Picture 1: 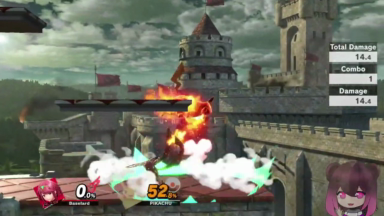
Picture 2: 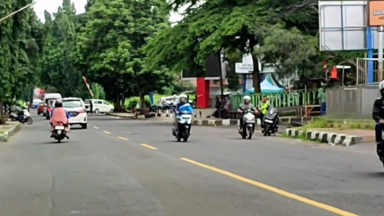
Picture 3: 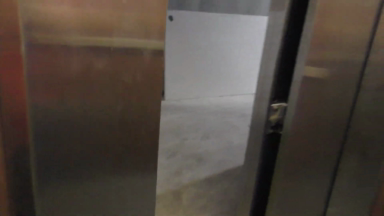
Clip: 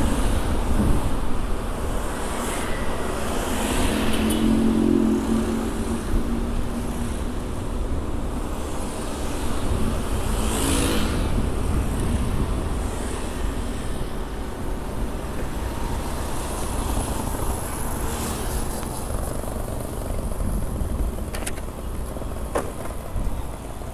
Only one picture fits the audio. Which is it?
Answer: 2